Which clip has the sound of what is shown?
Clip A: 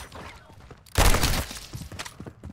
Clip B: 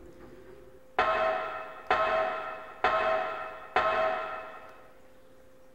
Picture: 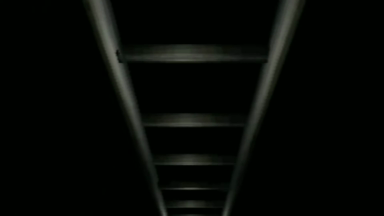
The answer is B